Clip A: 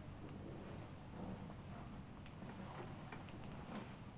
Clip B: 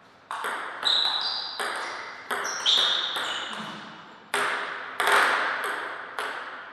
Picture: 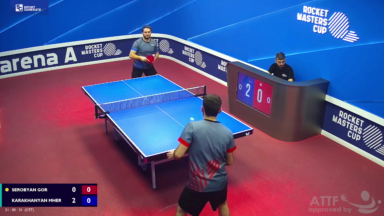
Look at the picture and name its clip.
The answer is B